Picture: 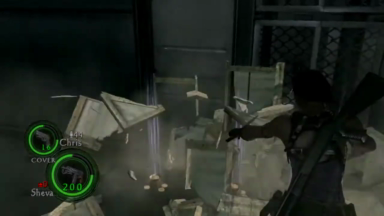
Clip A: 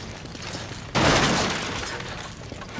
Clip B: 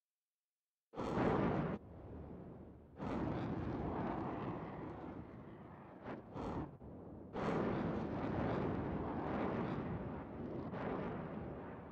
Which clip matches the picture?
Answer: A